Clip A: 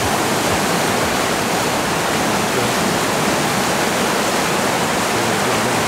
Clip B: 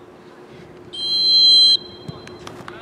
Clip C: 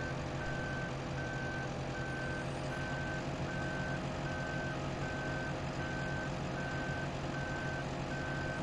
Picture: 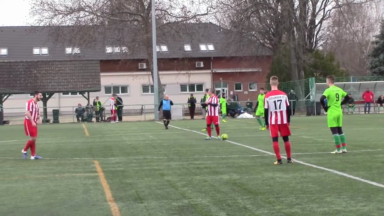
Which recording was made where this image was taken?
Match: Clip B